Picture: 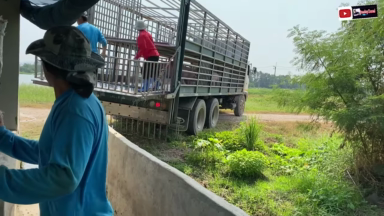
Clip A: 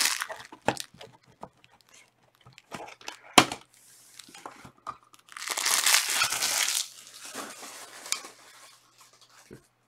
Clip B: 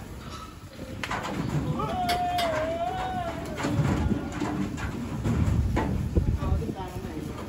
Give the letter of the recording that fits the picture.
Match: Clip B